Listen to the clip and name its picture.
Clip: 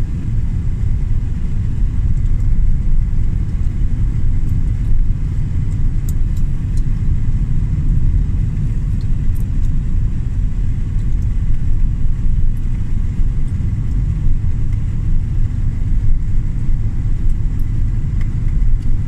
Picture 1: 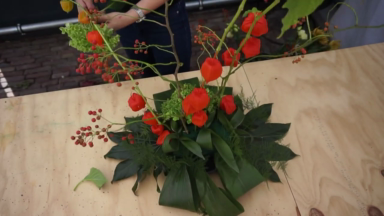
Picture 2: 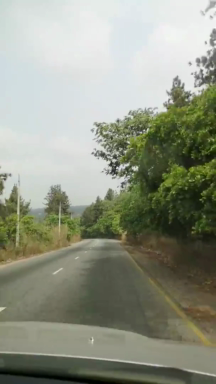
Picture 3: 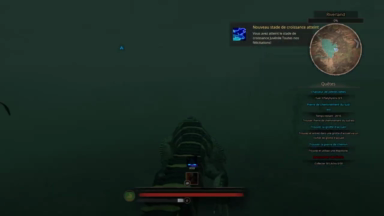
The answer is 2